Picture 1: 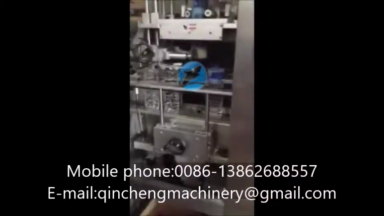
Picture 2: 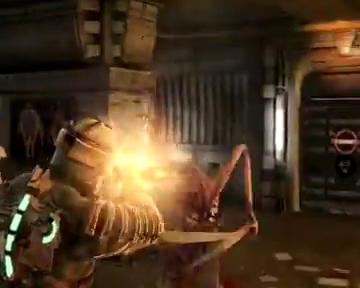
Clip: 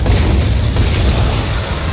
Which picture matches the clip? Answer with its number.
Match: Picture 2